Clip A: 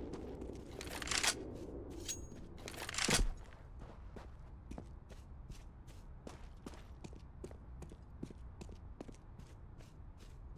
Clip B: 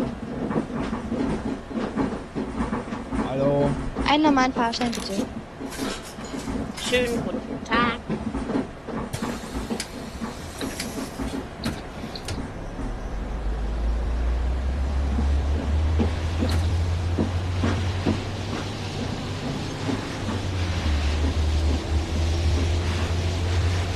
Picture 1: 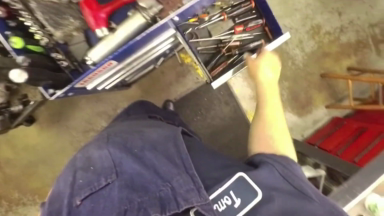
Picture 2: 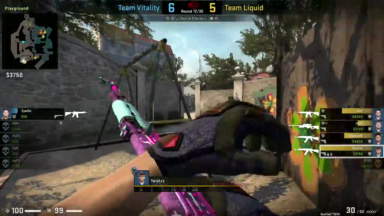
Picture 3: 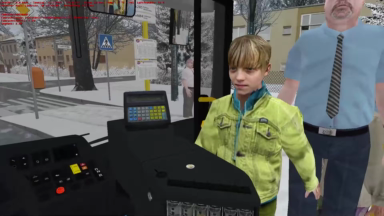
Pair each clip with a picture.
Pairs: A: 2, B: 3